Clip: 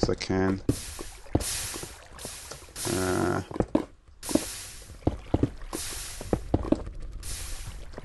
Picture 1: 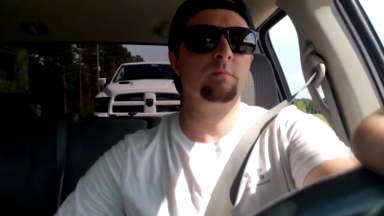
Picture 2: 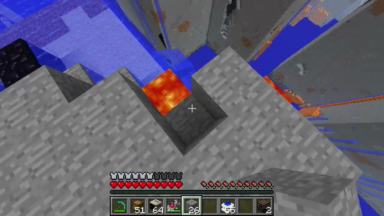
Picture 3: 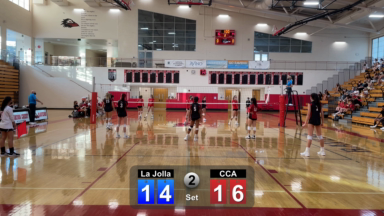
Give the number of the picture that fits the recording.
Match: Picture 2